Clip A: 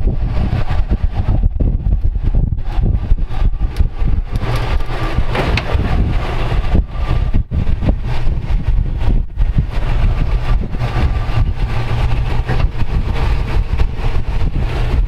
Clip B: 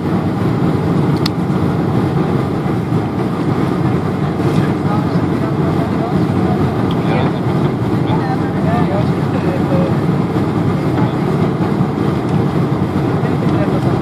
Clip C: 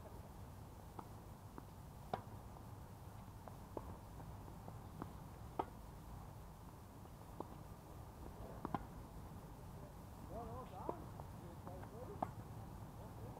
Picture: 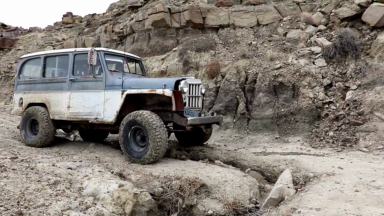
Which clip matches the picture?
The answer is A